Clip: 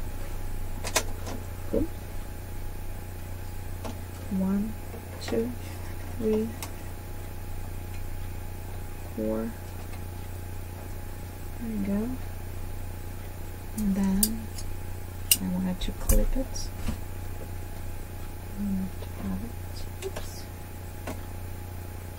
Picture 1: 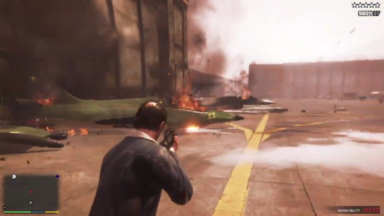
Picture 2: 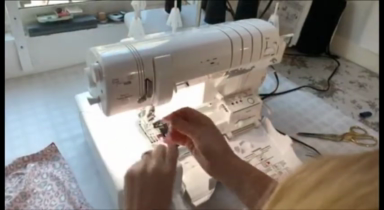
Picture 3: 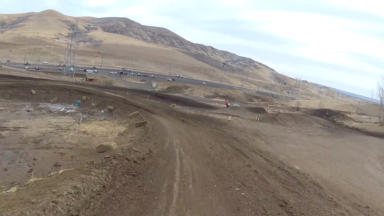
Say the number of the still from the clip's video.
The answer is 2